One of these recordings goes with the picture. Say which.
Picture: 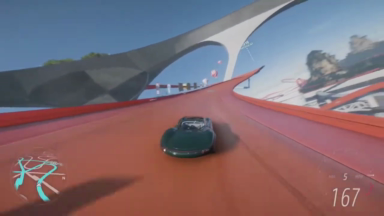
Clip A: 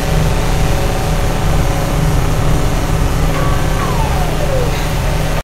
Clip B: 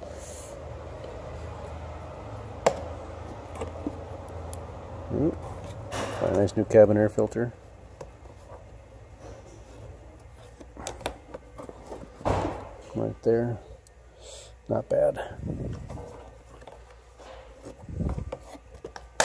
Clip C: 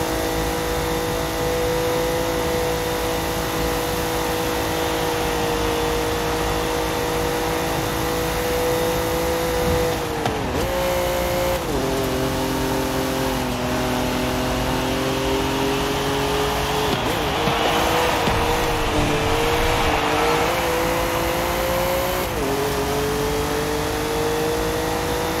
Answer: C